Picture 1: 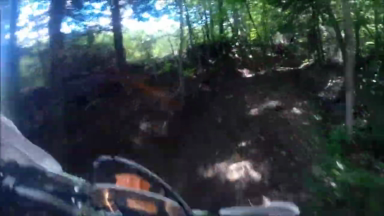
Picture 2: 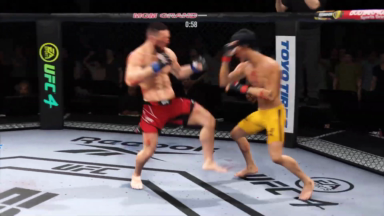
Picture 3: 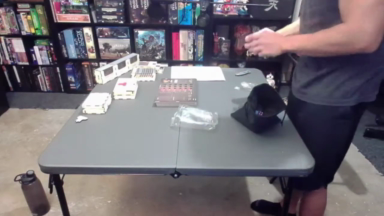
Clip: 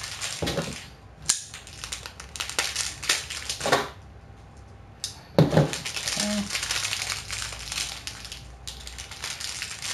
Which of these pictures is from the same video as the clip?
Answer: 3